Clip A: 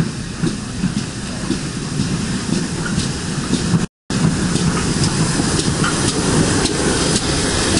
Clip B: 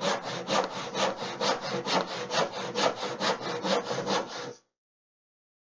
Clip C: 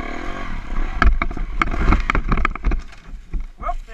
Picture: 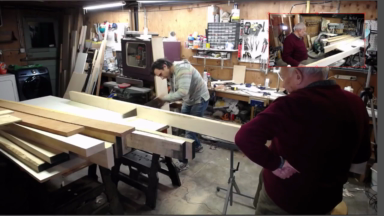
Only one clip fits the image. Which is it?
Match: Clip B